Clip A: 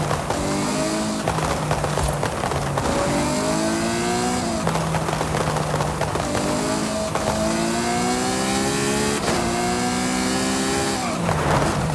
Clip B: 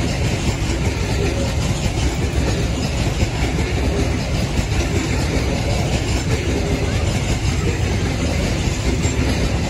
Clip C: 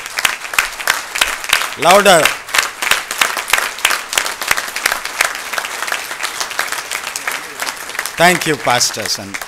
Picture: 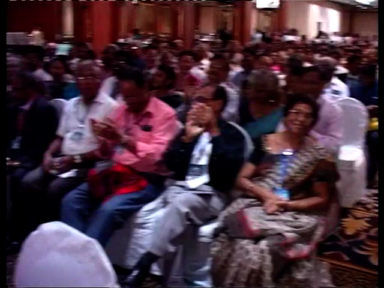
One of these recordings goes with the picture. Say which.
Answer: C